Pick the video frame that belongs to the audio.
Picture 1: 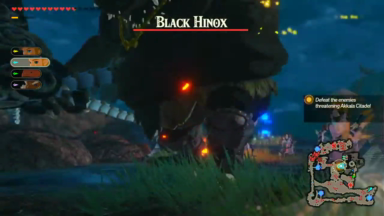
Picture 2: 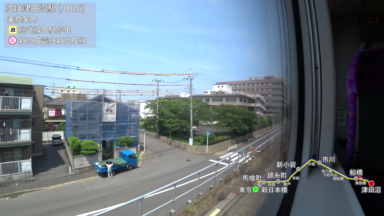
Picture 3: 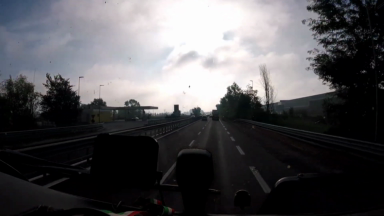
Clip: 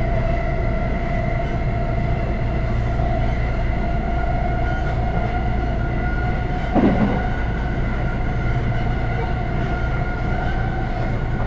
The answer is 2